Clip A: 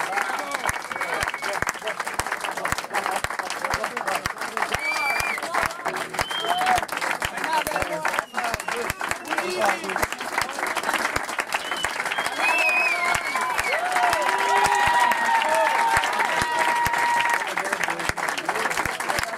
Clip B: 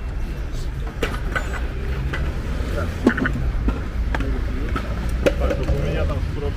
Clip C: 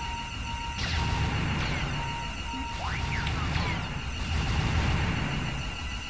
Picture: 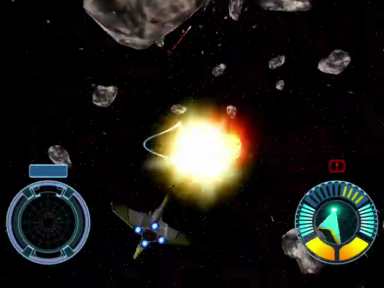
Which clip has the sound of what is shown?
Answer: C